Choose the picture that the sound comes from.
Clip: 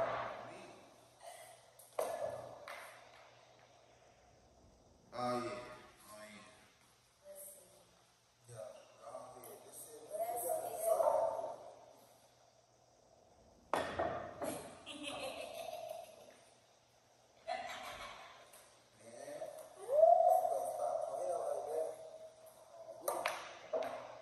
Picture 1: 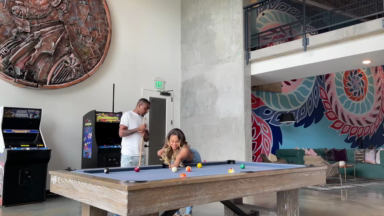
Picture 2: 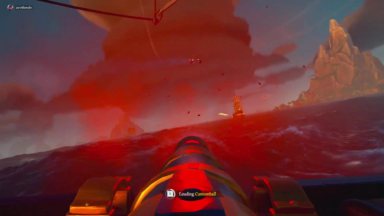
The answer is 1